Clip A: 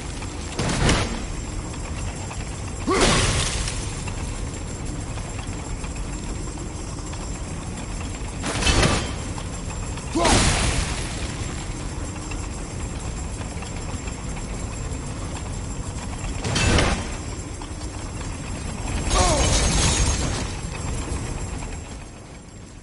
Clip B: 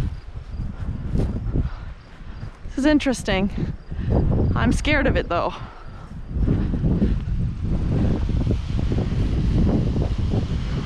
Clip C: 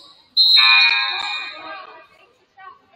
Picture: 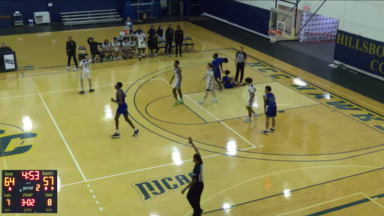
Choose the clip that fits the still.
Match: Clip C